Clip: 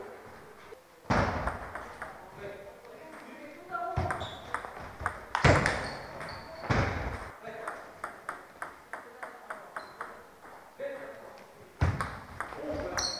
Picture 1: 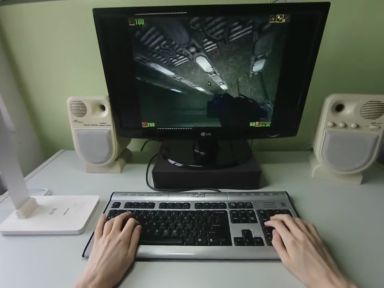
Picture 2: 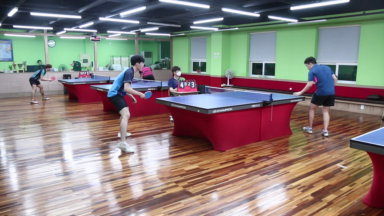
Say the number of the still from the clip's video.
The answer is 2